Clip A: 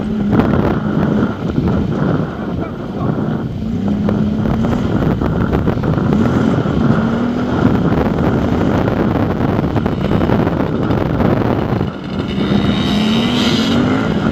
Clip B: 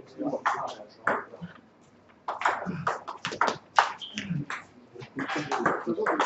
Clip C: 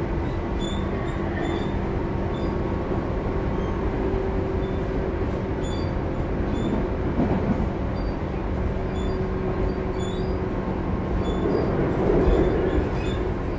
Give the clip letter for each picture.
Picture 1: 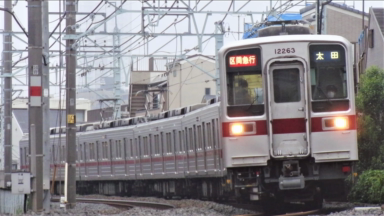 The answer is C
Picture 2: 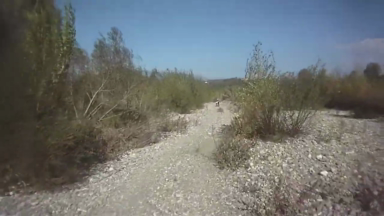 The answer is A